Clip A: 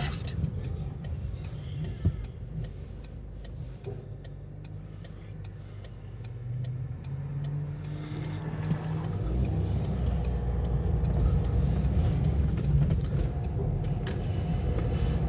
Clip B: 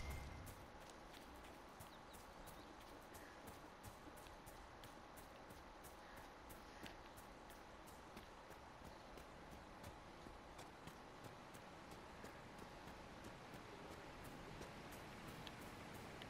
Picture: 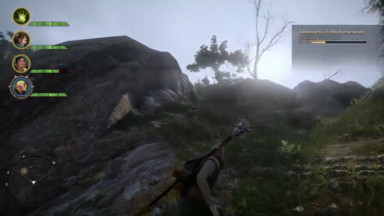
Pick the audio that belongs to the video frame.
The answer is B